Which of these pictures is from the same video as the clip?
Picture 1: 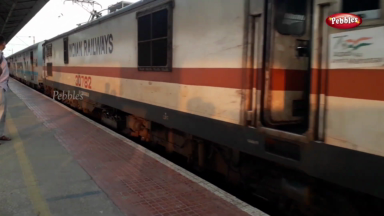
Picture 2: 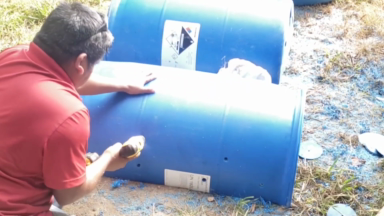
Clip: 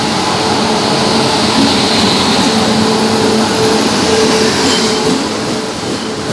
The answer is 1